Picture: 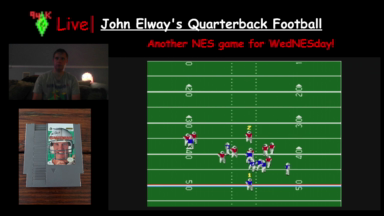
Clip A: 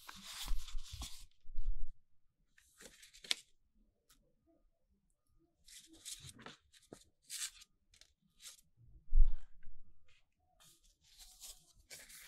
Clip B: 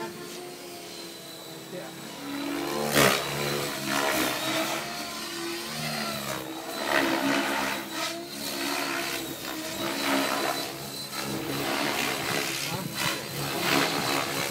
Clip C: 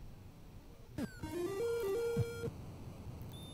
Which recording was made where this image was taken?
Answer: C